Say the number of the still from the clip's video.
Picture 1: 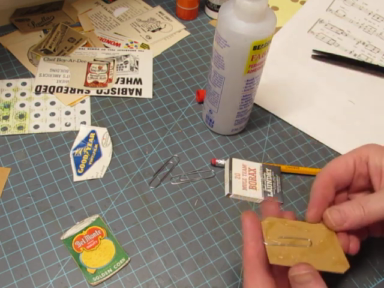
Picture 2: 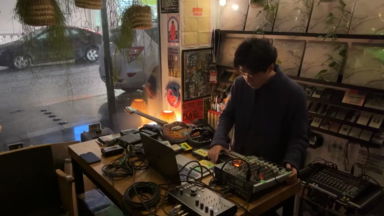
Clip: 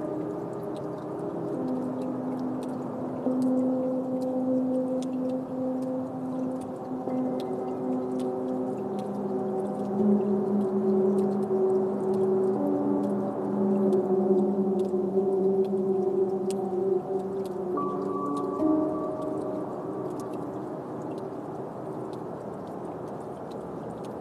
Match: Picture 2